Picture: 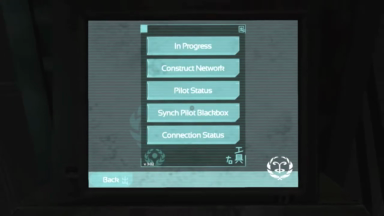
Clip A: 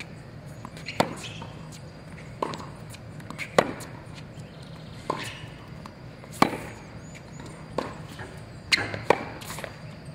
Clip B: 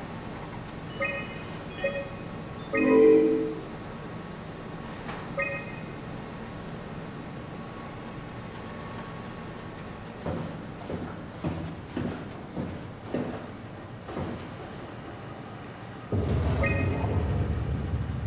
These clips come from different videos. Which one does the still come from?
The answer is B